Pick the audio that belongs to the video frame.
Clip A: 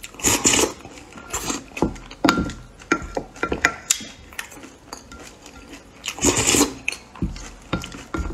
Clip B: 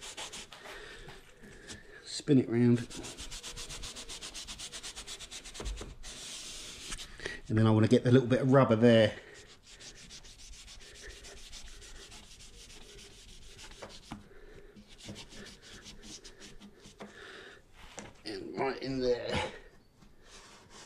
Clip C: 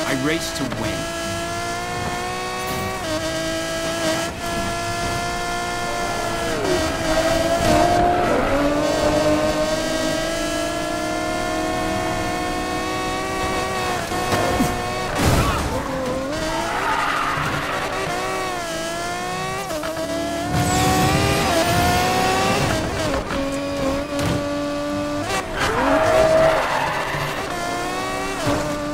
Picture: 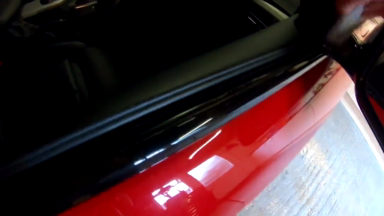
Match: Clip B